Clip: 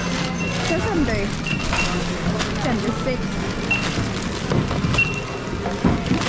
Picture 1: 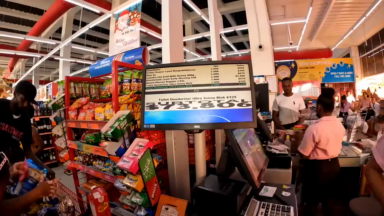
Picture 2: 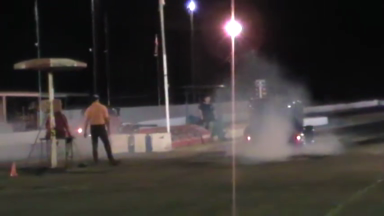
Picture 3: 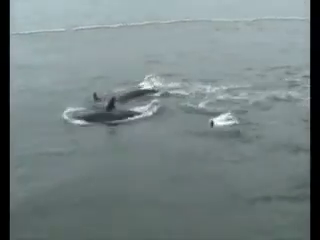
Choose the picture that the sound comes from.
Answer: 1